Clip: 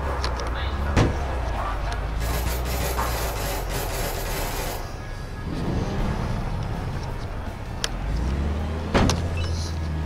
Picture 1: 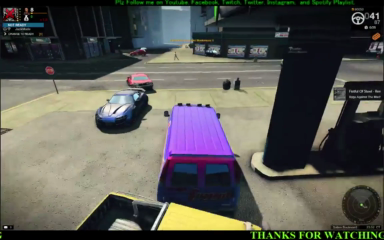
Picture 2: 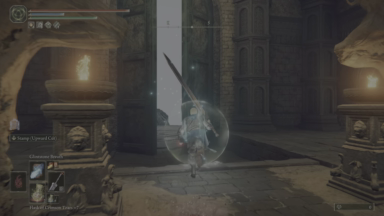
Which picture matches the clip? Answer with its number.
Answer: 1